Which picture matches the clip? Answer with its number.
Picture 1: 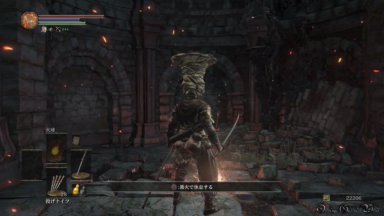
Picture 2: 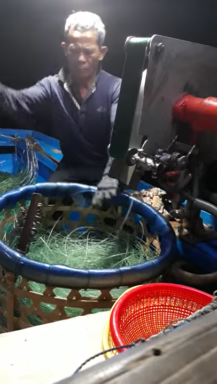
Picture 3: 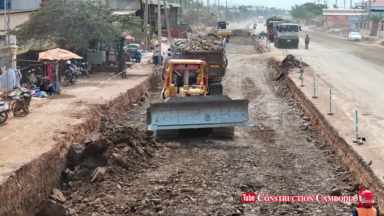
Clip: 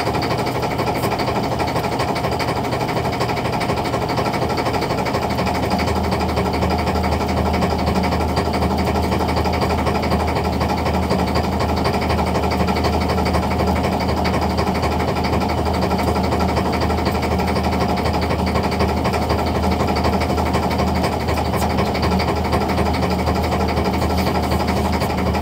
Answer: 2